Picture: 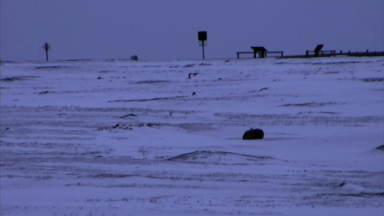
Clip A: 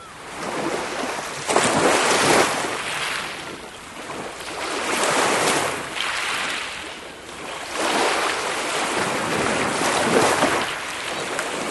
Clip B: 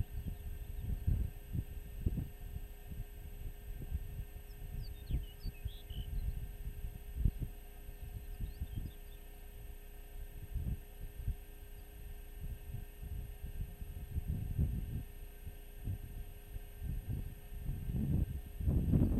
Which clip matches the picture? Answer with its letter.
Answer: B